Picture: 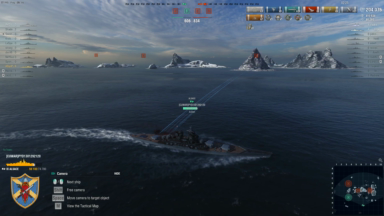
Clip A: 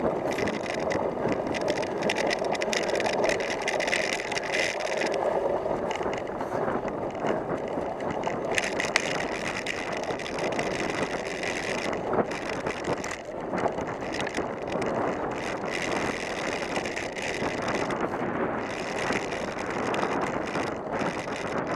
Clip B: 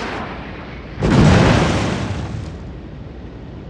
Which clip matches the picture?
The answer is B